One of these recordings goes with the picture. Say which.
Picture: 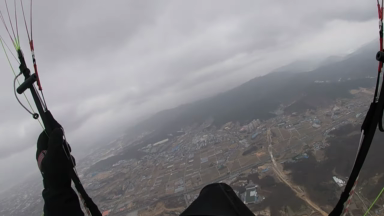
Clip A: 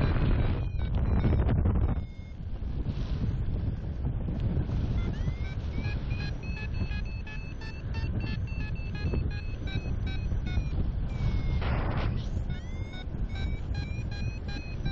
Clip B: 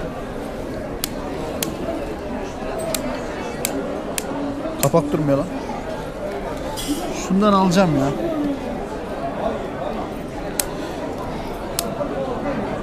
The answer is A